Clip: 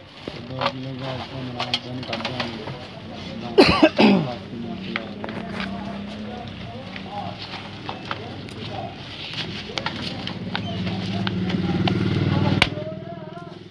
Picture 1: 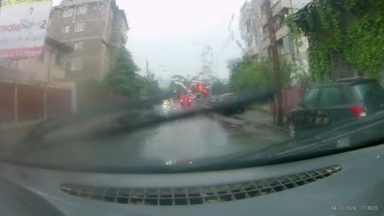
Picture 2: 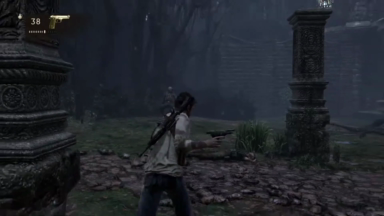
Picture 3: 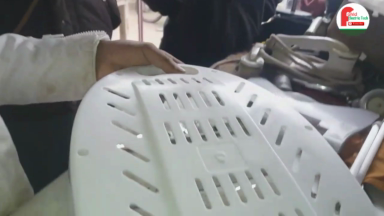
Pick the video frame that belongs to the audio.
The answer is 3